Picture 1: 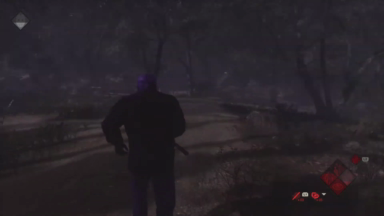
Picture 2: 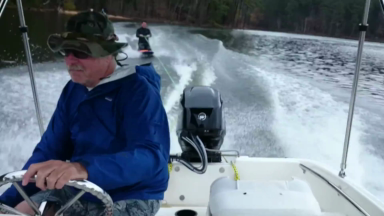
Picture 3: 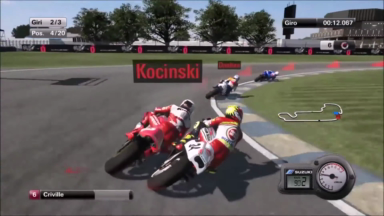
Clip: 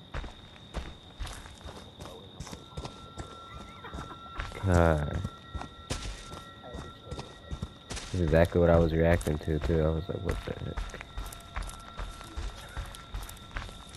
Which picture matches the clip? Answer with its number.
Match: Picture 1